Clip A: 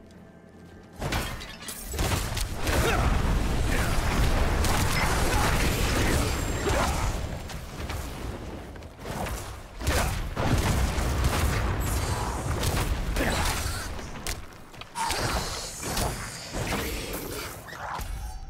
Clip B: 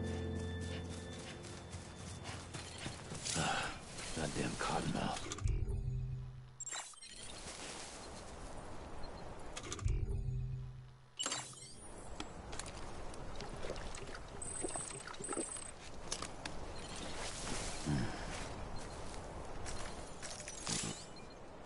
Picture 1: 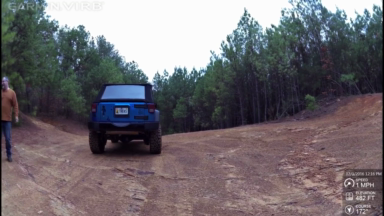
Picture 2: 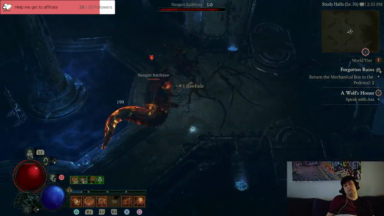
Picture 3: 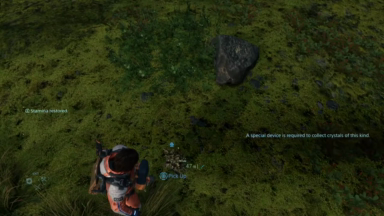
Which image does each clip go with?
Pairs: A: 2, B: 3